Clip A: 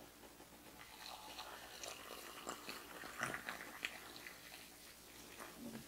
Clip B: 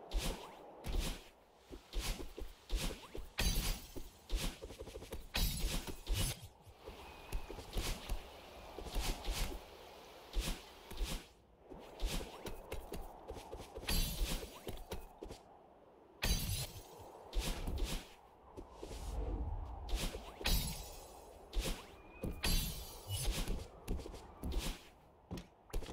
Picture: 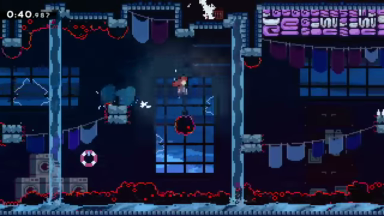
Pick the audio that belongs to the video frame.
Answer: B